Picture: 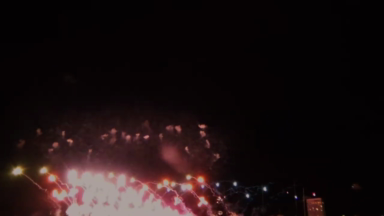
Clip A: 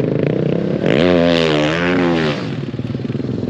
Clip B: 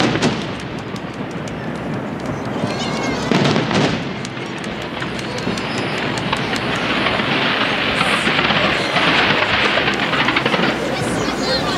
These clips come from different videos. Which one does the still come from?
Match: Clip B